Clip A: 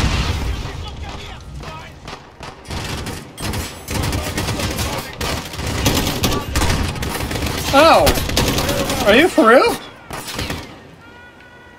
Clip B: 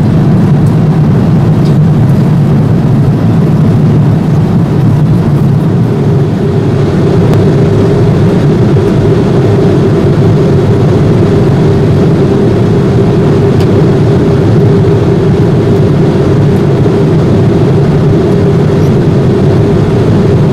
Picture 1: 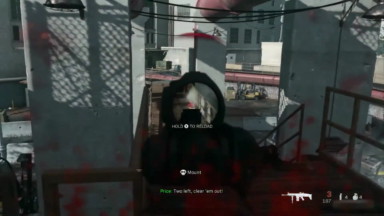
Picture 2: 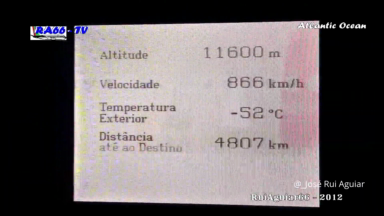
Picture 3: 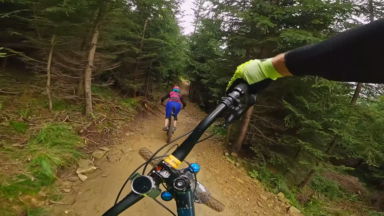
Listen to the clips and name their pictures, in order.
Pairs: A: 1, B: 2